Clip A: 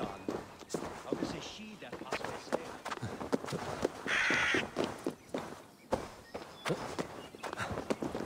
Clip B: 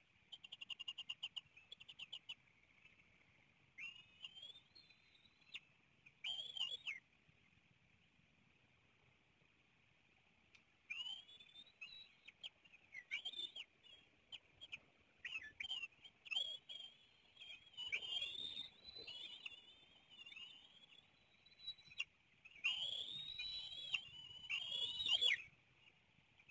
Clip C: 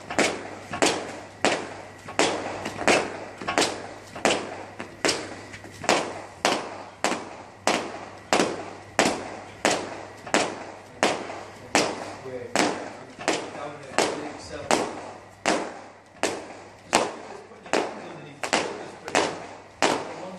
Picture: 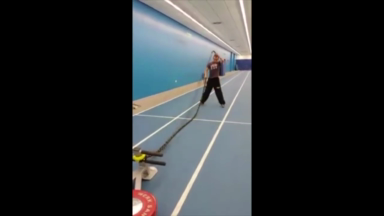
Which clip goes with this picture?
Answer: C